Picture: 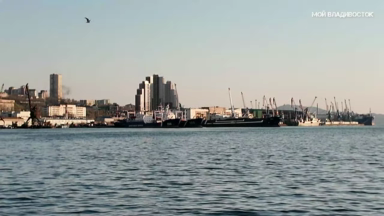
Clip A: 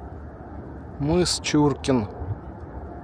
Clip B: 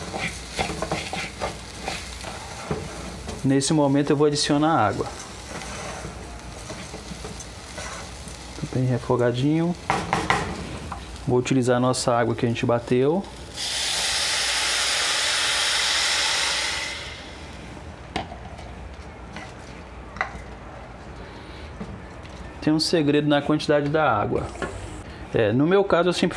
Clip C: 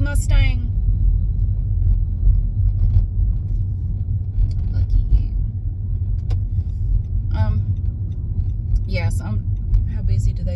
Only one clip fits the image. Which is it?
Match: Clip A